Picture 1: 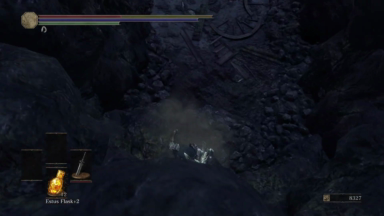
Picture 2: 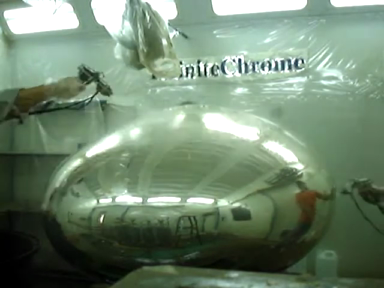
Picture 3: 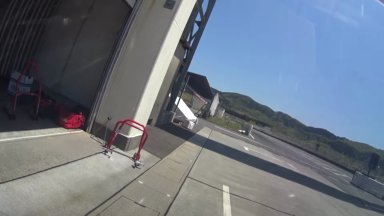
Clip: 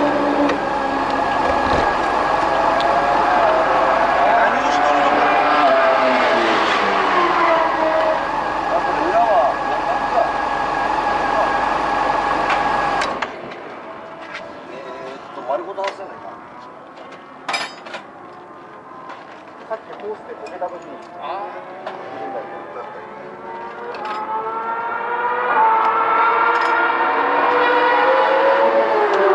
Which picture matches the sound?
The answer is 3